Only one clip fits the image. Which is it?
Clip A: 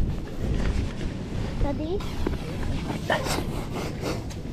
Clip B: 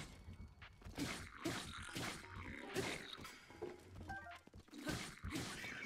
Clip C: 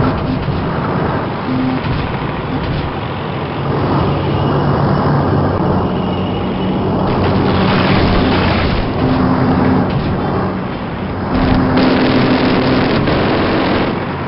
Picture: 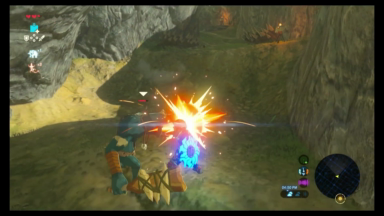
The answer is B